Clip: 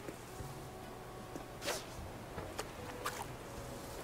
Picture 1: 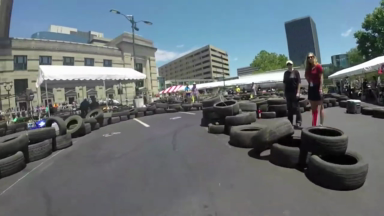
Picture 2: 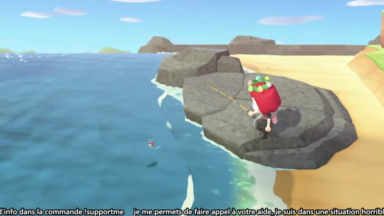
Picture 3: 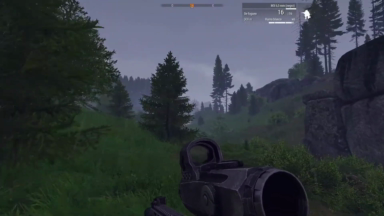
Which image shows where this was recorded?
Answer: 2